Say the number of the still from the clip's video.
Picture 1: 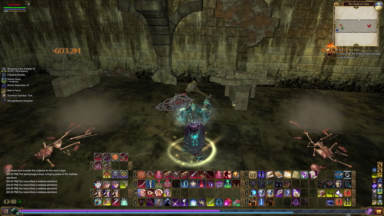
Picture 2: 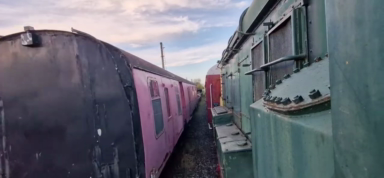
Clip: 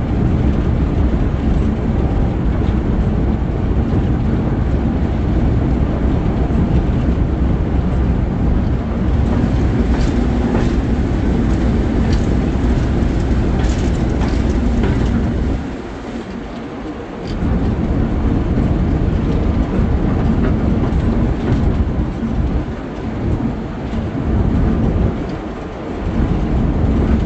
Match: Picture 2